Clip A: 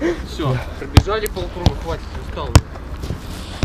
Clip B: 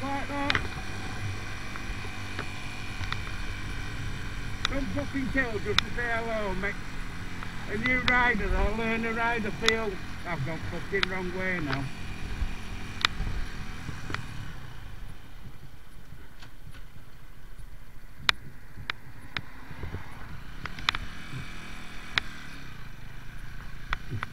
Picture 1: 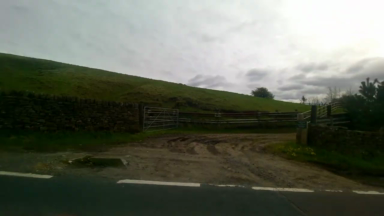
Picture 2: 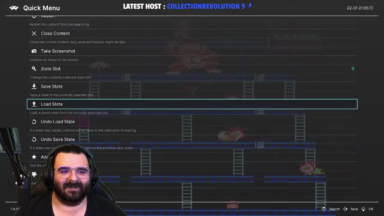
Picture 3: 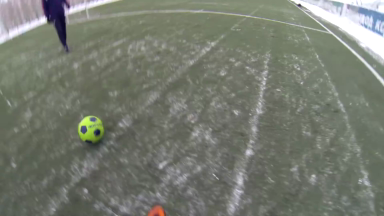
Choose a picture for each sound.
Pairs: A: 3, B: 1